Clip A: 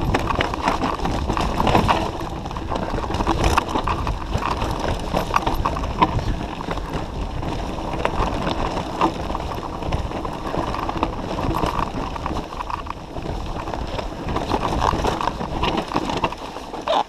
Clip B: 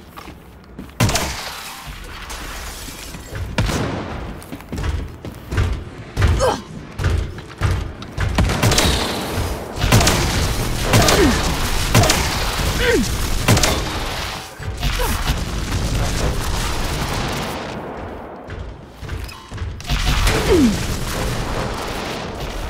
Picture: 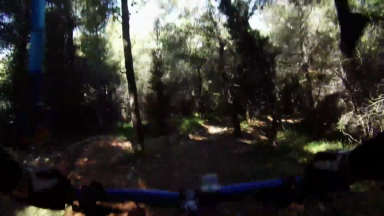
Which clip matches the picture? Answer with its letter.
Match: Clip A